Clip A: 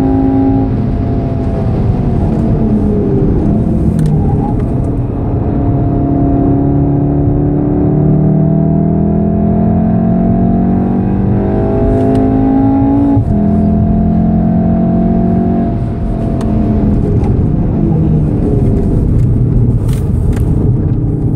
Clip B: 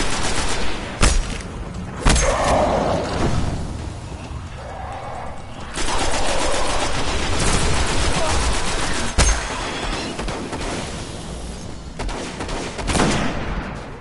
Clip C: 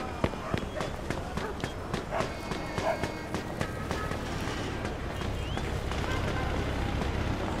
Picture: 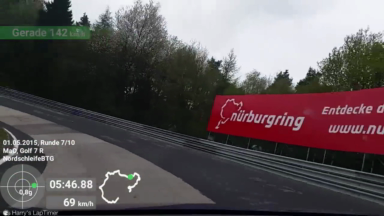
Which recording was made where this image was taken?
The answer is A